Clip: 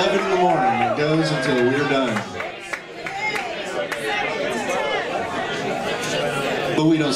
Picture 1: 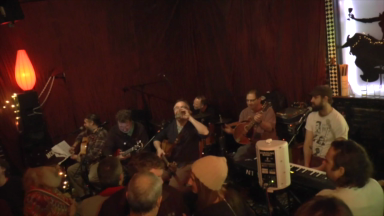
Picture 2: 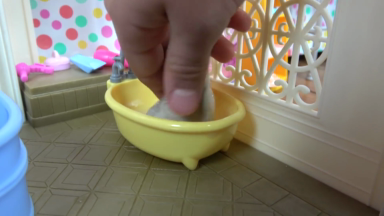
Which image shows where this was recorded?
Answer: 1